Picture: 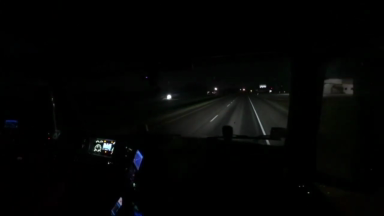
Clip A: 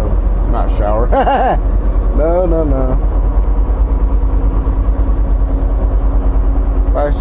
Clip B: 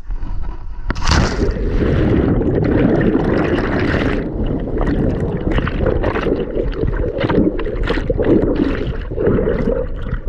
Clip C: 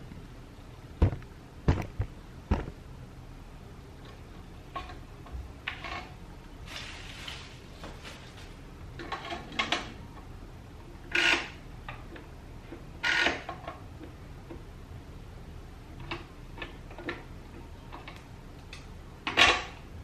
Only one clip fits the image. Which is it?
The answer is A